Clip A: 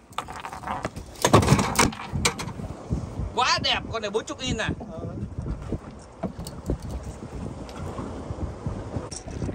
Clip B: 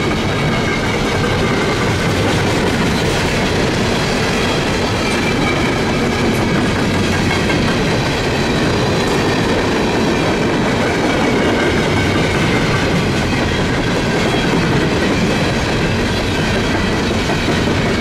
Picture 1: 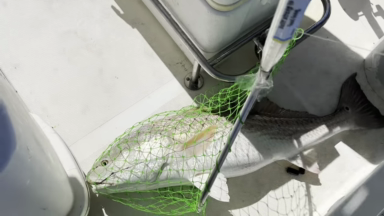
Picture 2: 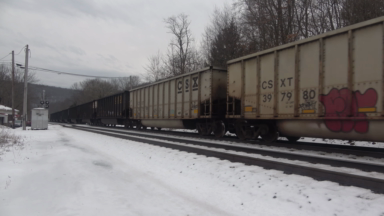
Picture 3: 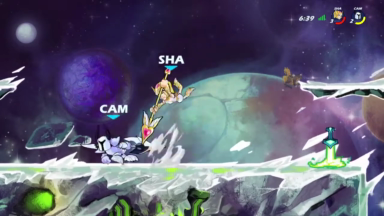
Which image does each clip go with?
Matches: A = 1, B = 2